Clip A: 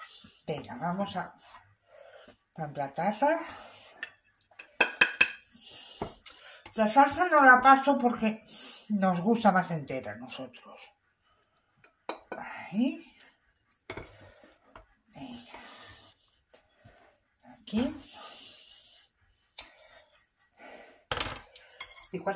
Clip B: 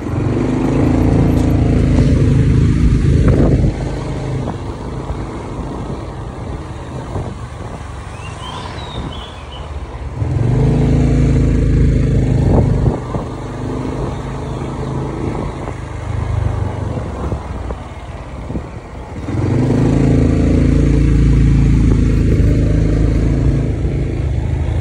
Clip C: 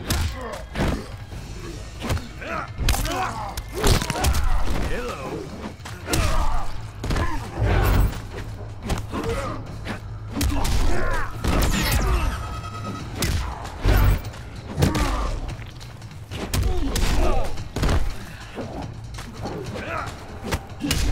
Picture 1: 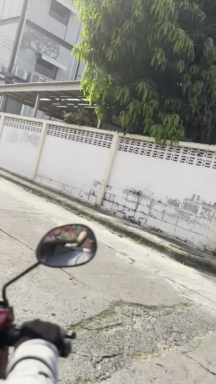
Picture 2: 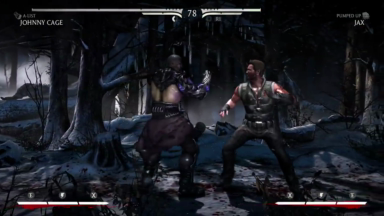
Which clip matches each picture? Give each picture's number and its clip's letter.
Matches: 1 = B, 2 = C